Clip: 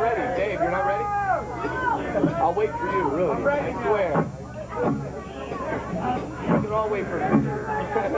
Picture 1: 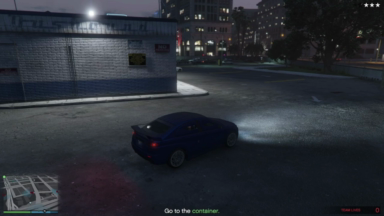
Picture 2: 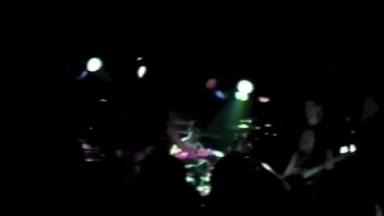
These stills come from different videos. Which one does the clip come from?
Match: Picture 2